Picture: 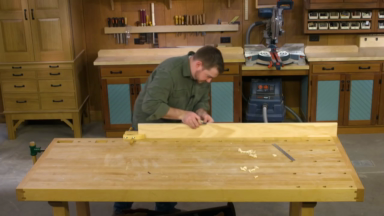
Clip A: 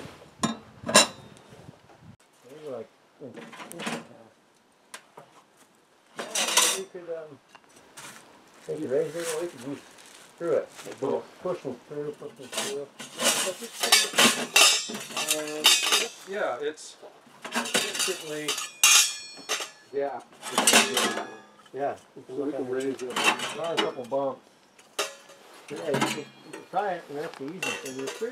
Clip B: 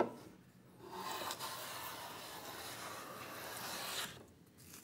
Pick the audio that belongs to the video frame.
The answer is B